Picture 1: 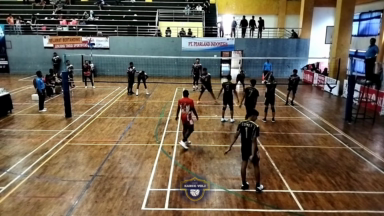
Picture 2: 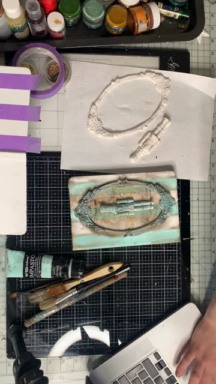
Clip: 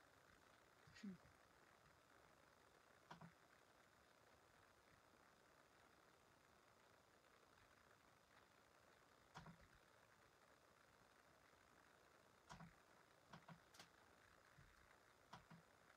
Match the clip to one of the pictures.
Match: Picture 2